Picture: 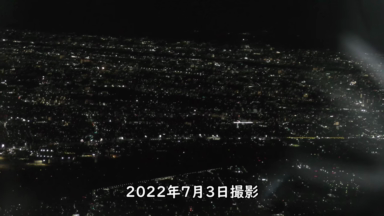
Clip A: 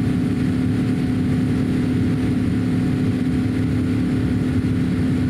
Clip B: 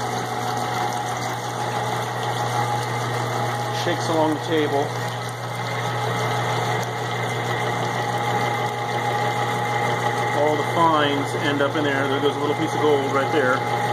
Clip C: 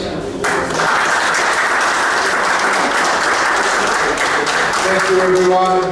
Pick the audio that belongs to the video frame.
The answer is A